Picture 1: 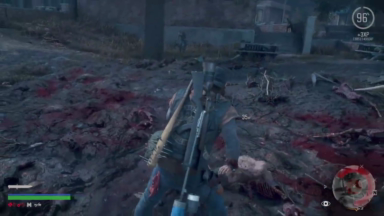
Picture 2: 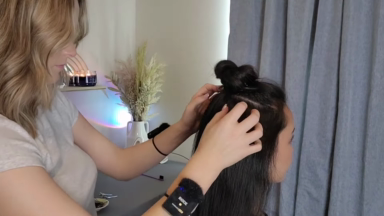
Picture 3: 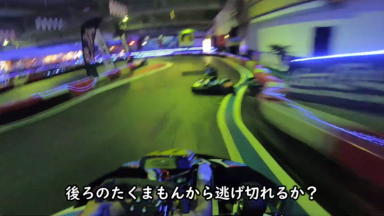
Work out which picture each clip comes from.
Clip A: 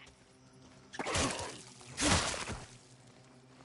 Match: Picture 1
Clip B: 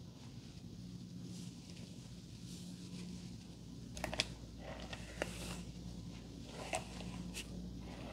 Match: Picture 2